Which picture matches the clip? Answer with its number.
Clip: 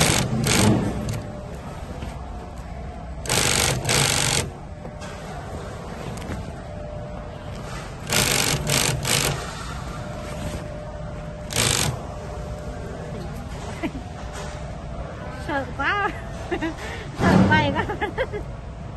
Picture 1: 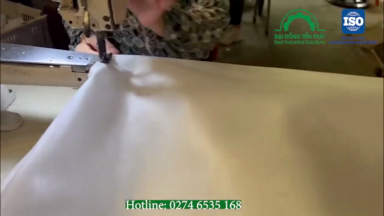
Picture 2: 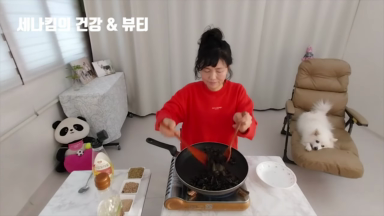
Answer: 1